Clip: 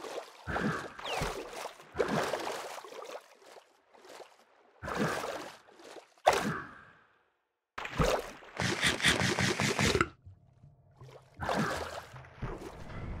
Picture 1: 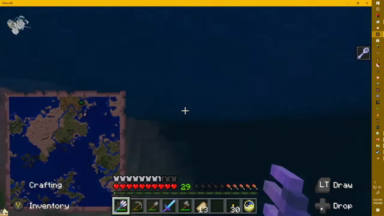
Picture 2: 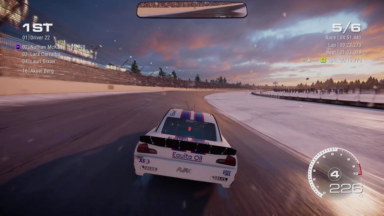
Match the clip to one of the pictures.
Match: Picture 1